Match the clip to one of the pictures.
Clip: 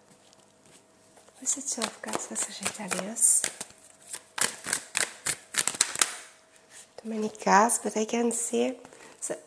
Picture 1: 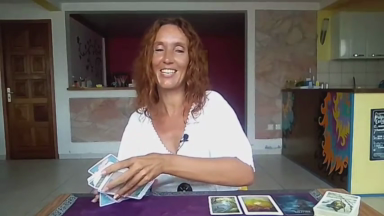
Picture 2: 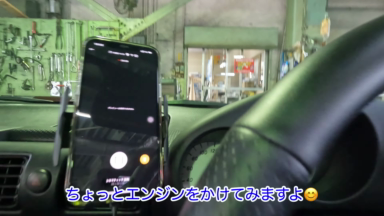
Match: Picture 1